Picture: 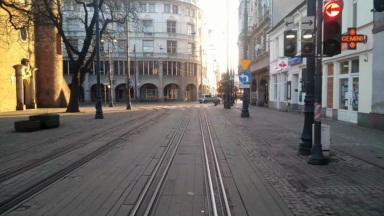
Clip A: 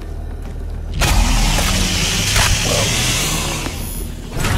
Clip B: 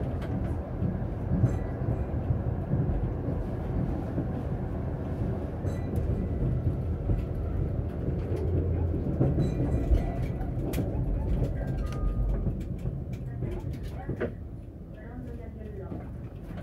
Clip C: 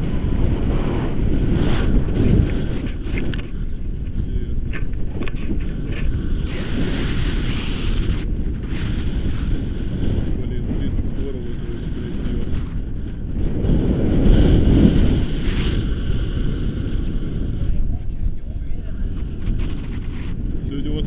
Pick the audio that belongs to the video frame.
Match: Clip B